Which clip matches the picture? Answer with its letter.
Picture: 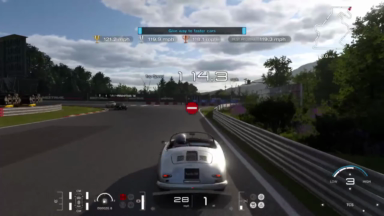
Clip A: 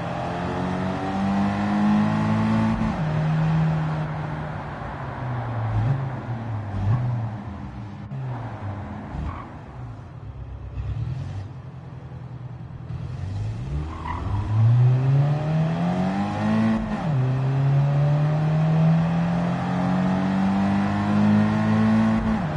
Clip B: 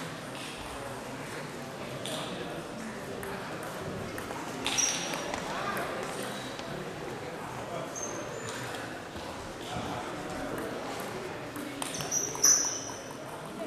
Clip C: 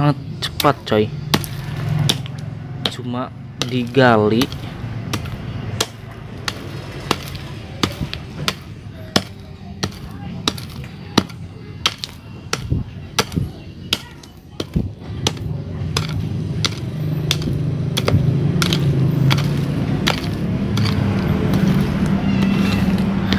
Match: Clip A